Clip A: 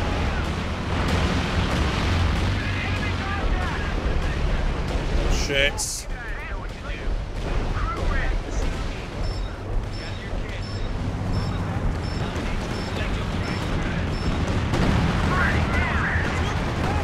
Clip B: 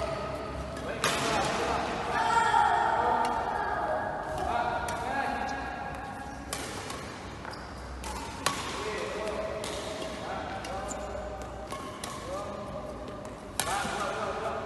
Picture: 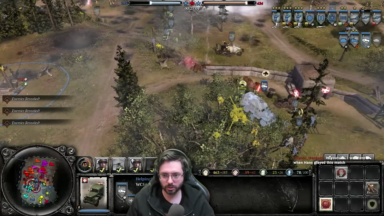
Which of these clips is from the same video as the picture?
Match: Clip A